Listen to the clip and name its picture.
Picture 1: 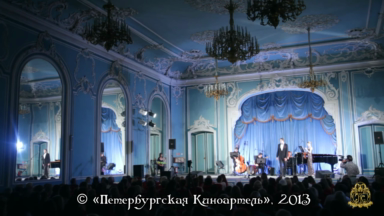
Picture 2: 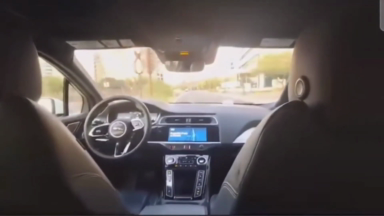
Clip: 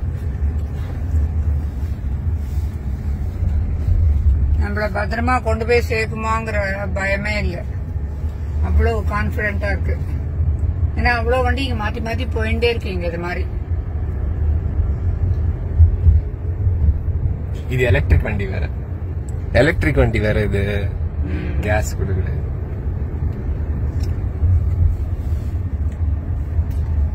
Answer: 2